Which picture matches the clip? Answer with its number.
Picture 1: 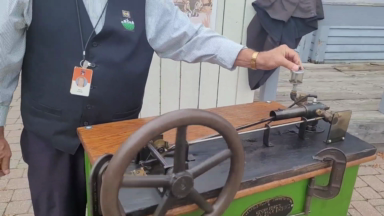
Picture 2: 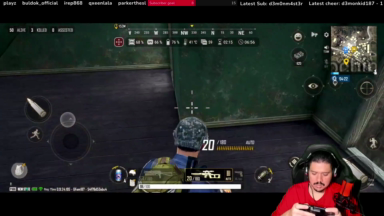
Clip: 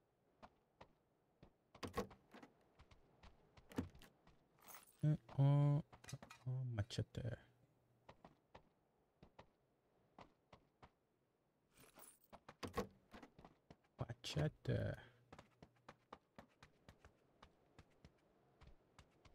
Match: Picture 2